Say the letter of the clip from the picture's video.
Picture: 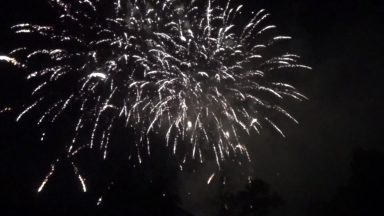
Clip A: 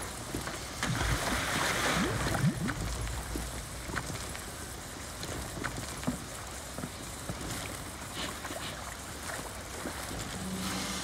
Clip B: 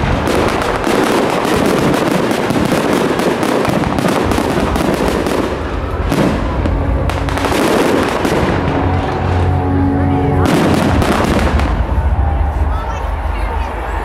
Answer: B